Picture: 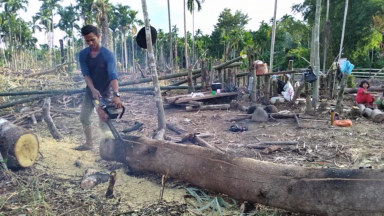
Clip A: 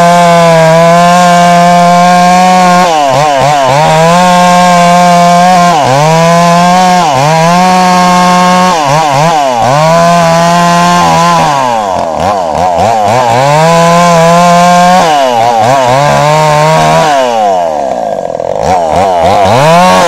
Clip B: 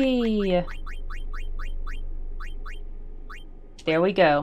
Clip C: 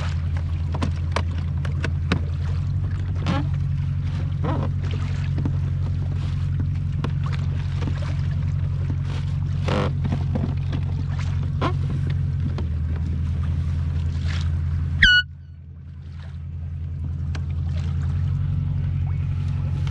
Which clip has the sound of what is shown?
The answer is A